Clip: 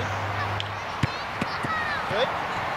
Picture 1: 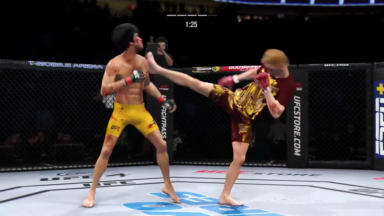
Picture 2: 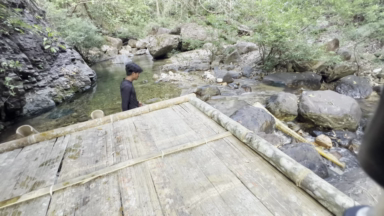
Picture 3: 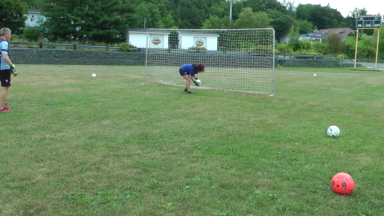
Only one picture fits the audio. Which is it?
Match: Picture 3